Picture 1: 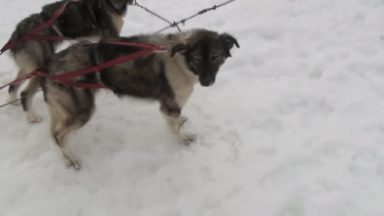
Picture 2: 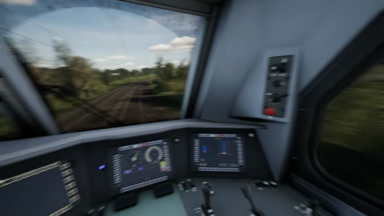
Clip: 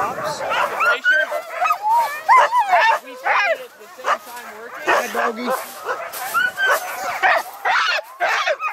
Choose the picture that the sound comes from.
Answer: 1